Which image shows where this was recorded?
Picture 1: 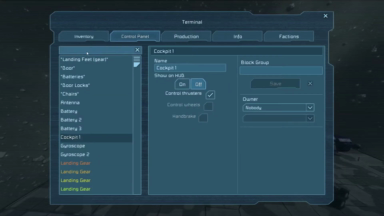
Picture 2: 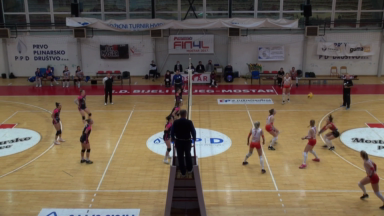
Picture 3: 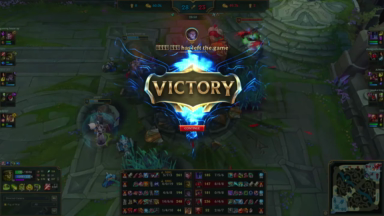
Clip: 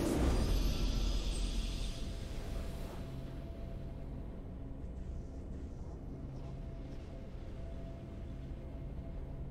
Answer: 3